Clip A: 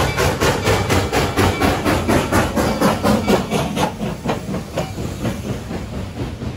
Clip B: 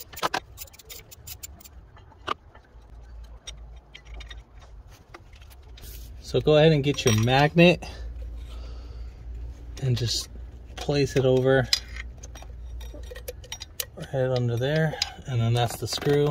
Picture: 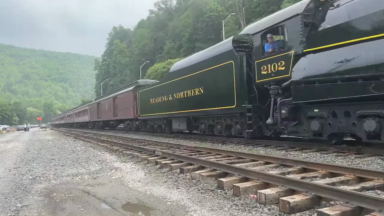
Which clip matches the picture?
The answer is A